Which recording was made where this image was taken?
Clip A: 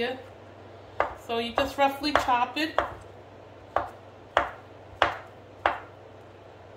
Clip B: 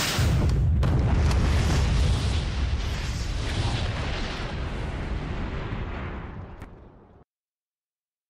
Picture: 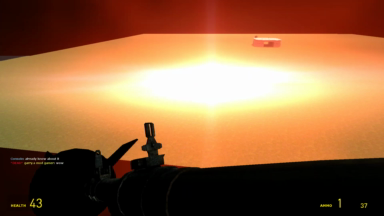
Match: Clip B